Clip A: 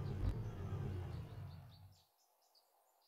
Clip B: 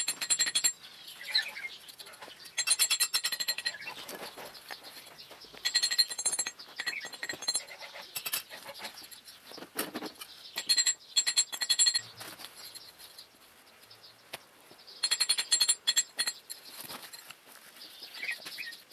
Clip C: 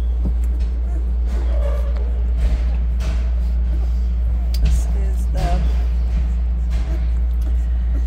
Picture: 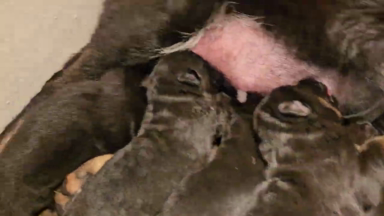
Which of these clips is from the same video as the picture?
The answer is C